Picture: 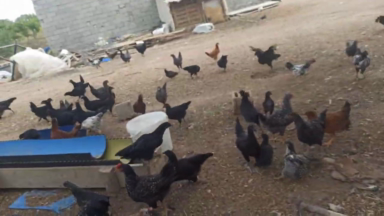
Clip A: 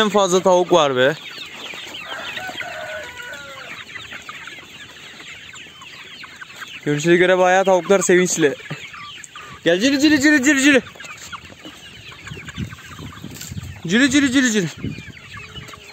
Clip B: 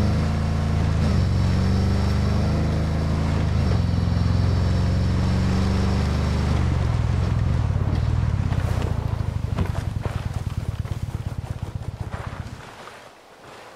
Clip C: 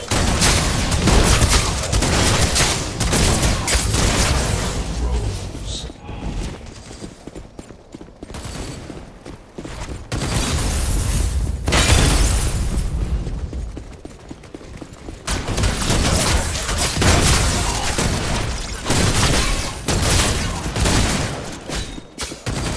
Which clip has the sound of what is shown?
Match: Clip A